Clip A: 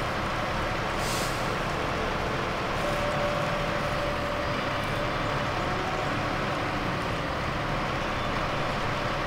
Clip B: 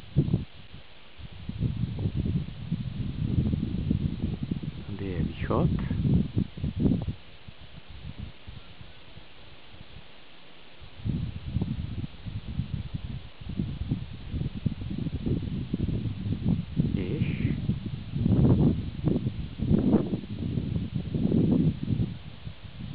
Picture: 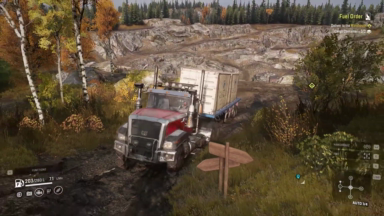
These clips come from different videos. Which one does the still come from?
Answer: A